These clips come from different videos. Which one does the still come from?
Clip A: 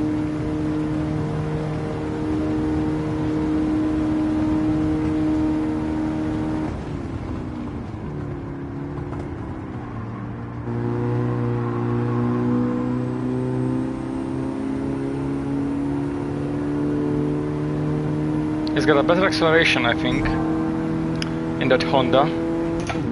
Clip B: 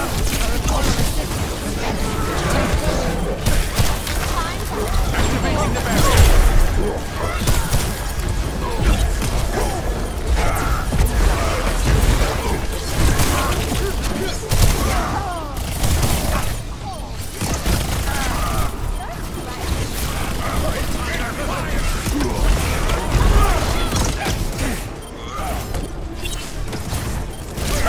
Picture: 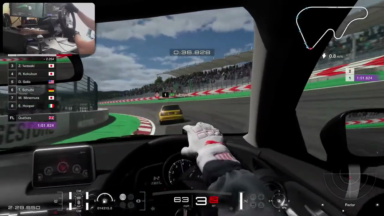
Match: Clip A